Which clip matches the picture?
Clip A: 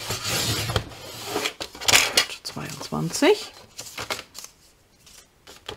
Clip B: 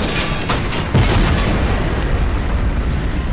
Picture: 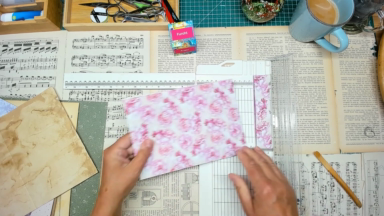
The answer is A